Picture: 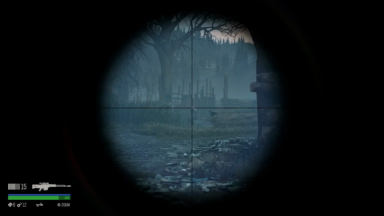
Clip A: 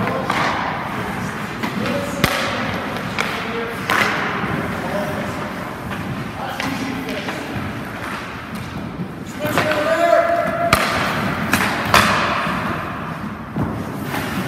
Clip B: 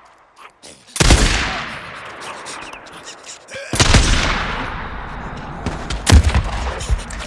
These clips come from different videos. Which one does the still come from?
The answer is B